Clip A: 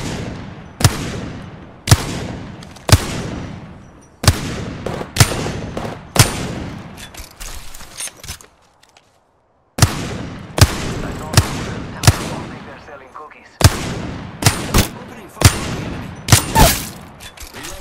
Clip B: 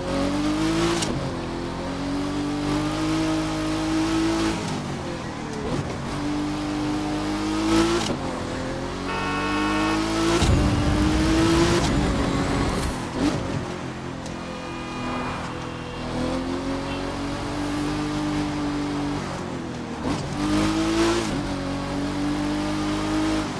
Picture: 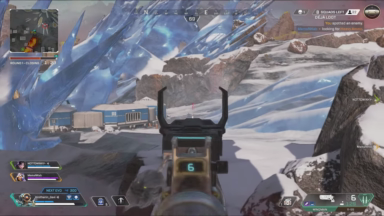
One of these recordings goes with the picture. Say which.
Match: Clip A